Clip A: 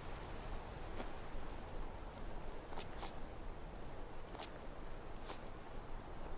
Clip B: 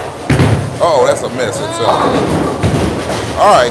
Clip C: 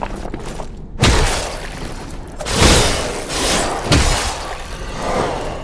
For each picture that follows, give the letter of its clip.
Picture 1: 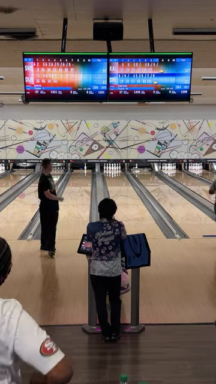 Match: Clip B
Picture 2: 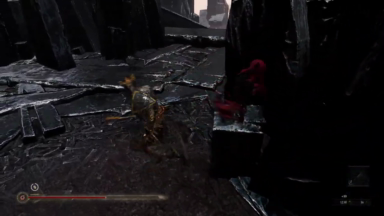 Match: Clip C